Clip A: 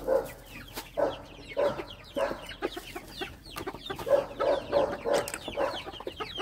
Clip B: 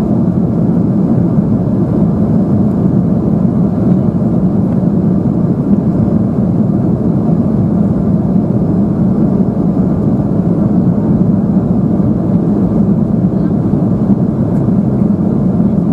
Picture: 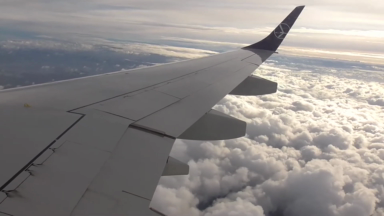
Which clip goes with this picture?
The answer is B